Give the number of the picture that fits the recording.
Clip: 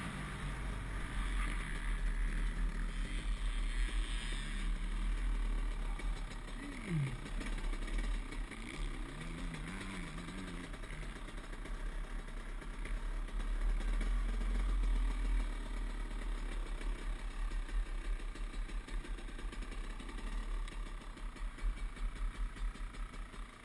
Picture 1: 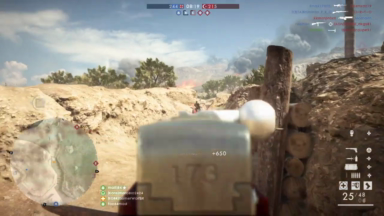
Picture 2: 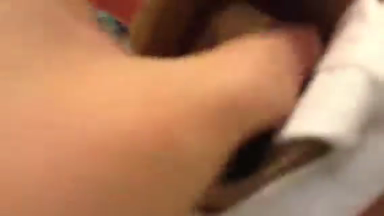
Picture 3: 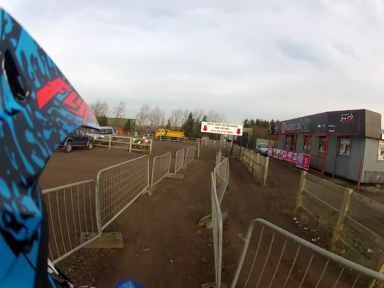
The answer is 3